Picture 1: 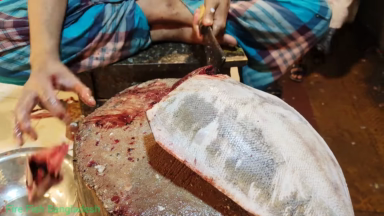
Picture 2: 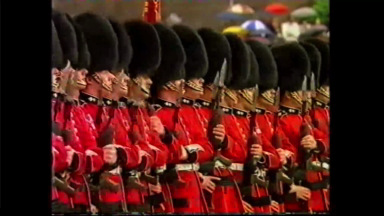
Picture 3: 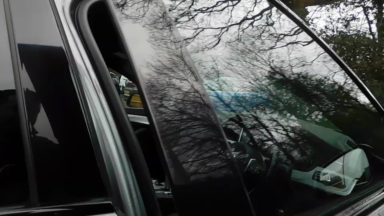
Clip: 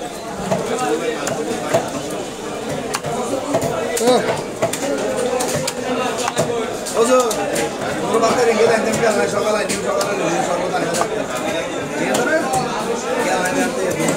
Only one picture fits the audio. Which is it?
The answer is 1